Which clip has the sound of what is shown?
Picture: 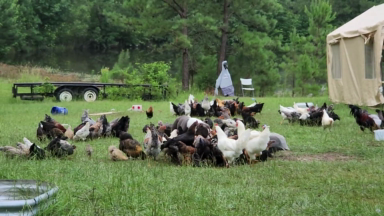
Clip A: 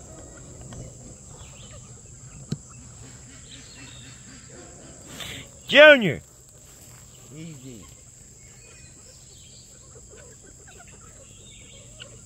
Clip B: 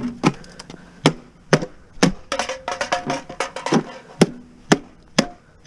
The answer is A